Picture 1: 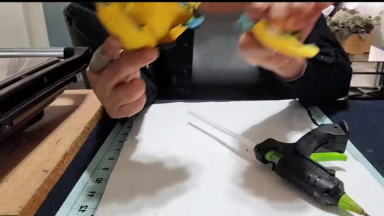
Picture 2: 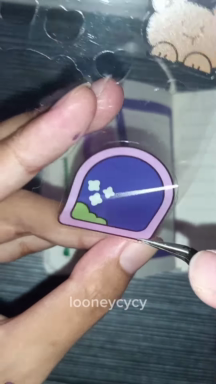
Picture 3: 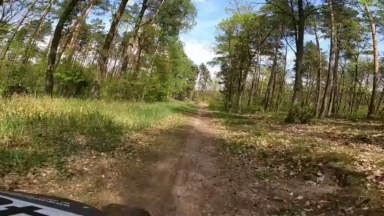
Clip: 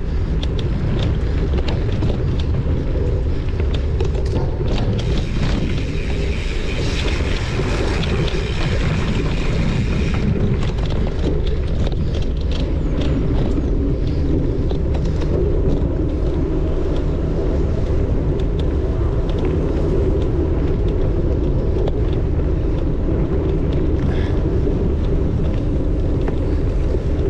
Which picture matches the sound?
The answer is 3